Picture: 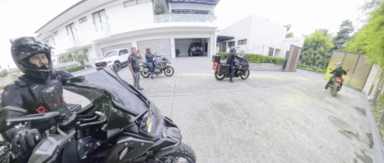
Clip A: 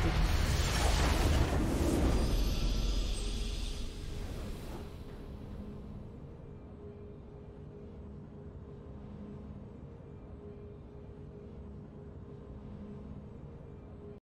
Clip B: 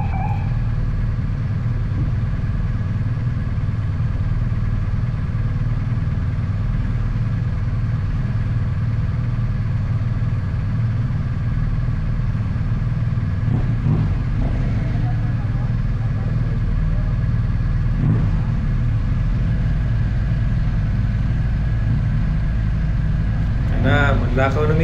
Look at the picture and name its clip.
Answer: B